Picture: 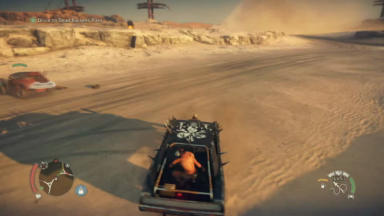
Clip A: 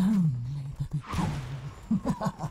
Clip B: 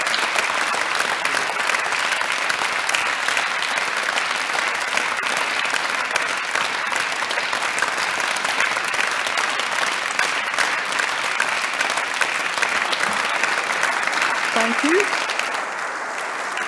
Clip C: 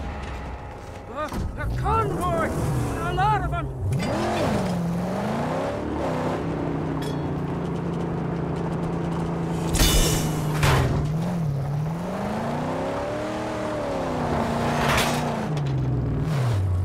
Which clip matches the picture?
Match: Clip C